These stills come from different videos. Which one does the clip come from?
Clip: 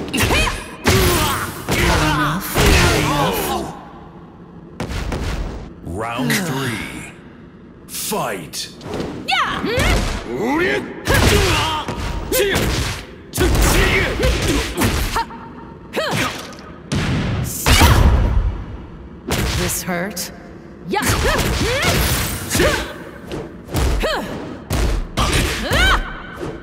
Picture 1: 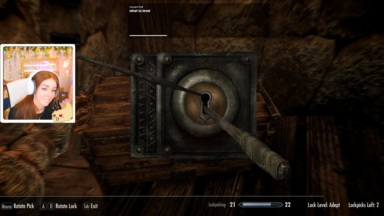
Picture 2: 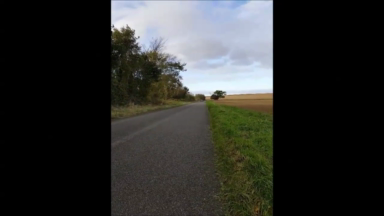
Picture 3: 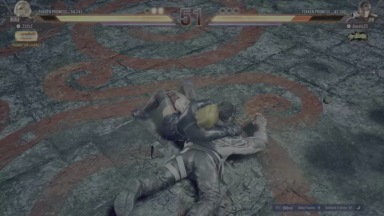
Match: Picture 3